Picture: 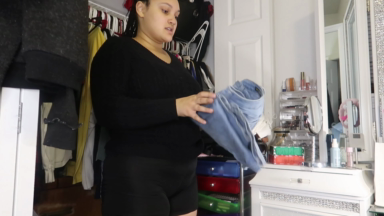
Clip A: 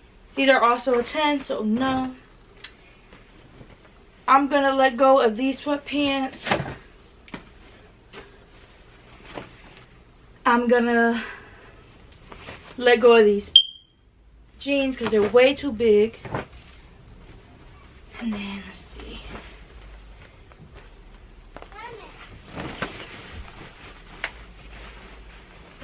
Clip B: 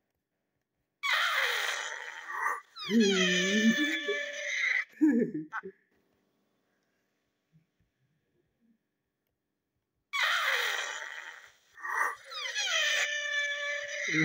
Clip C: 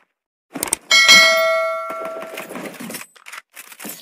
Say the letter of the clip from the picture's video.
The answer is A